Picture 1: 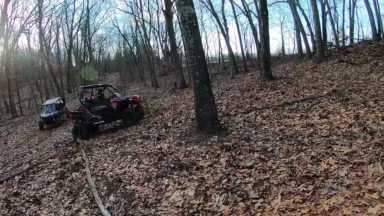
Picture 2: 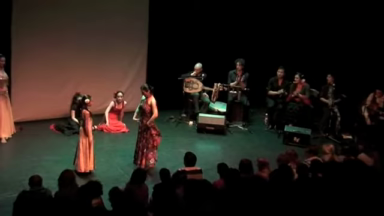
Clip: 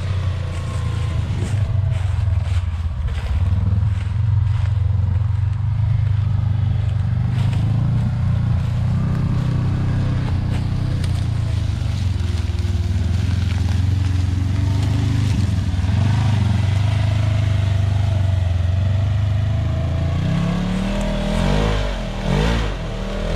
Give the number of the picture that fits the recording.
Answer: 1